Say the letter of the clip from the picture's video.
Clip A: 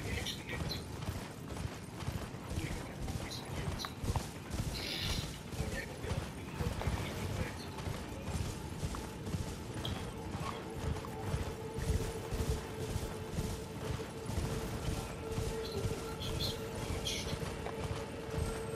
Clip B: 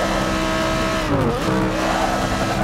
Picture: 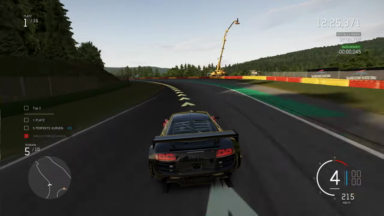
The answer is B